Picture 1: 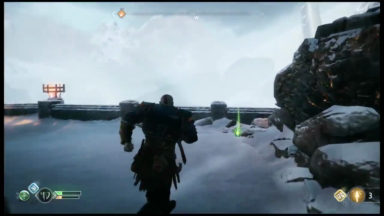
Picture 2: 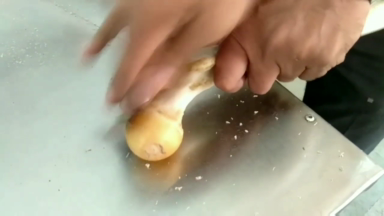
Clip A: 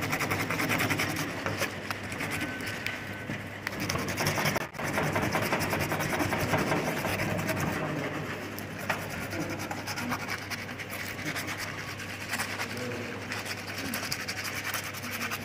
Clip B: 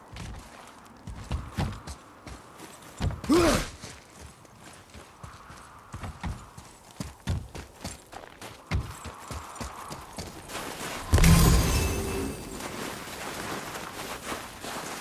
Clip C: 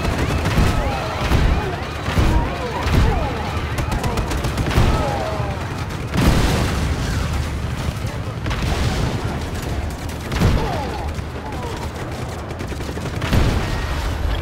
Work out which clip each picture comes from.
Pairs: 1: B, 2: A